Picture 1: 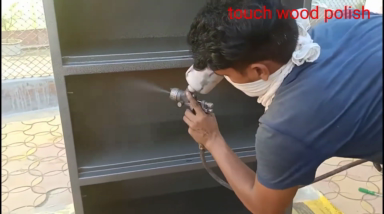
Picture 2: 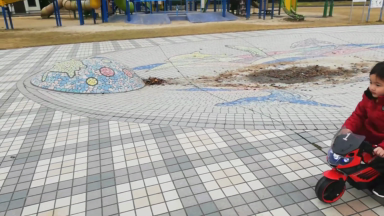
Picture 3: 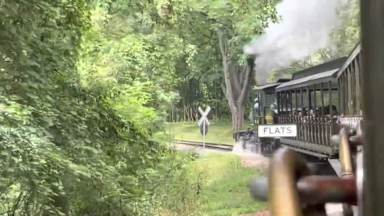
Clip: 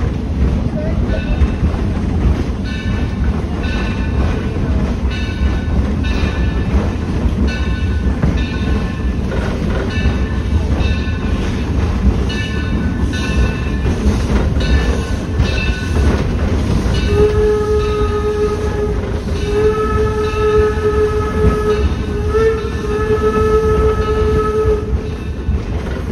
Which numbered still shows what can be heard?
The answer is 3